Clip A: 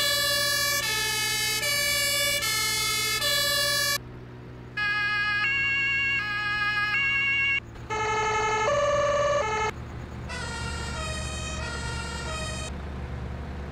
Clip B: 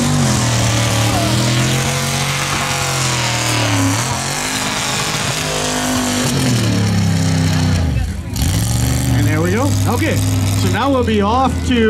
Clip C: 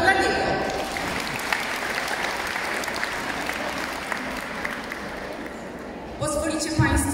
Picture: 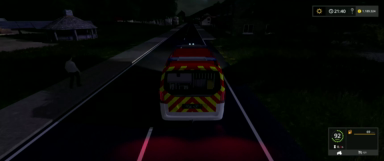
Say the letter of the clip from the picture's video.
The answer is A